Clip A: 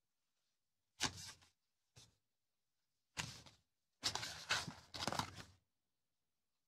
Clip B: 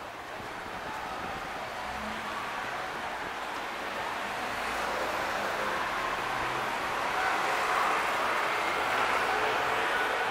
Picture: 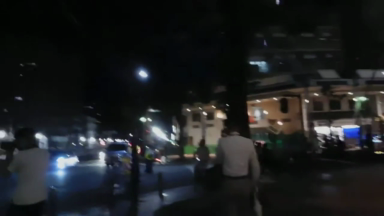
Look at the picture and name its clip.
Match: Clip B